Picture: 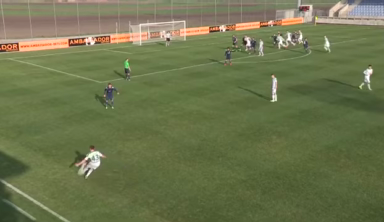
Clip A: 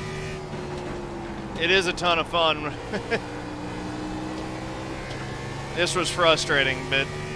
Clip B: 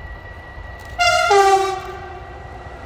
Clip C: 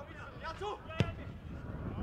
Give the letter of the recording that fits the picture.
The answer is C